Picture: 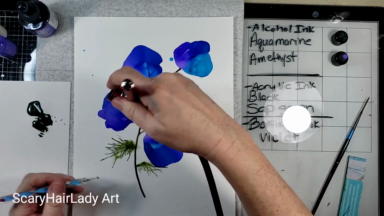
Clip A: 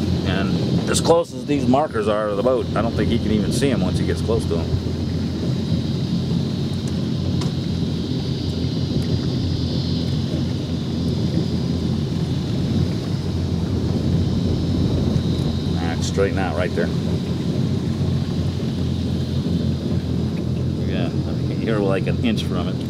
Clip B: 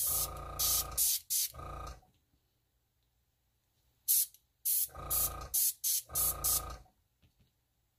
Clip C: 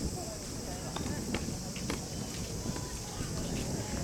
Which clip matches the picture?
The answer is B